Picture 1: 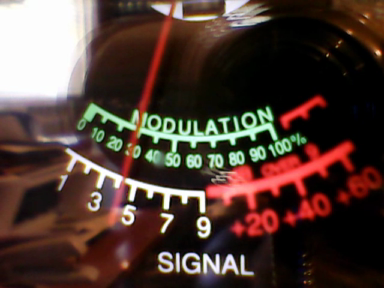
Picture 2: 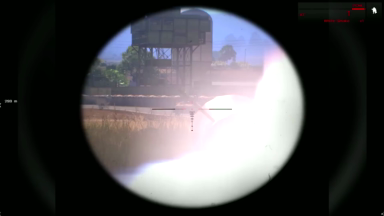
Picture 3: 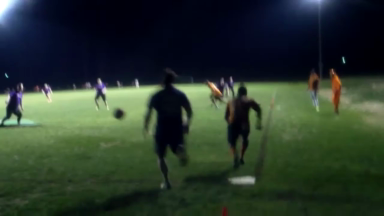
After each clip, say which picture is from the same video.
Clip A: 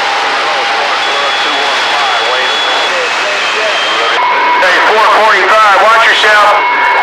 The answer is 1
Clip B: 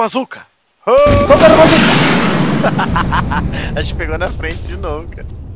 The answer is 2